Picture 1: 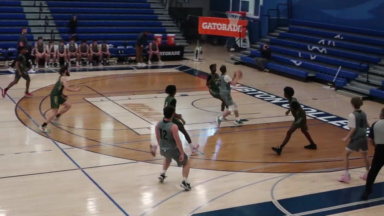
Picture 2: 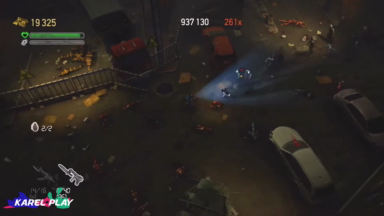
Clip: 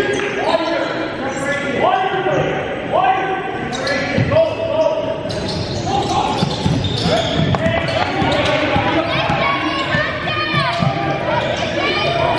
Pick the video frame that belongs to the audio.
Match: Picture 1